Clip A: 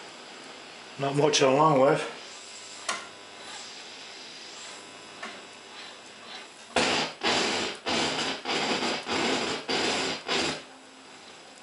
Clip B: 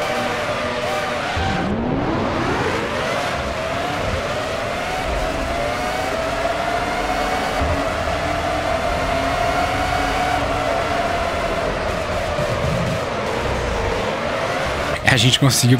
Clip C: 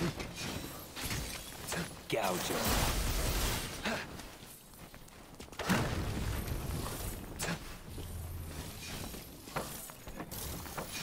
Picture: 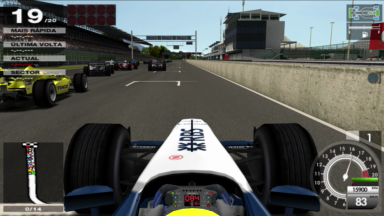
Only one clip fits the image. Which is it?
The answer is B